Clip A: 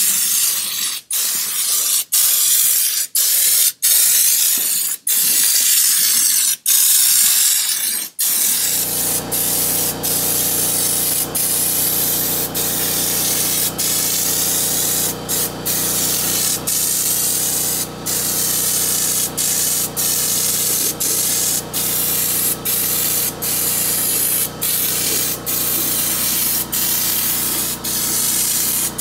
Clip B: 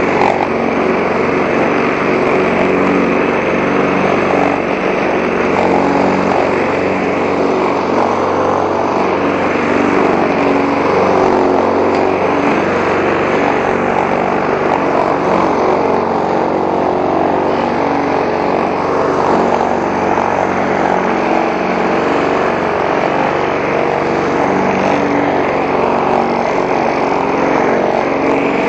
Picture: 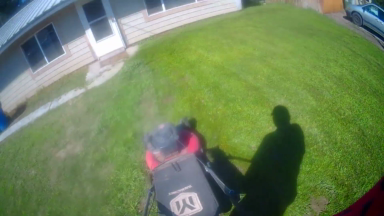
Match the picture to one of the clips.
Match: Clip B